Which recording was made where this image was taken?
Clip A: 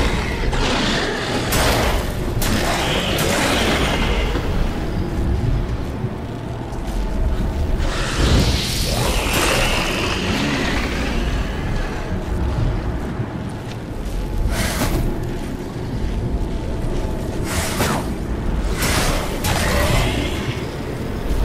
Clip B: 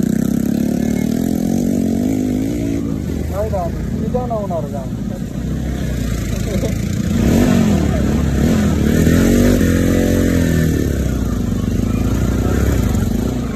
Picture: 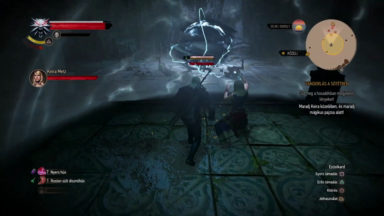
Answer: A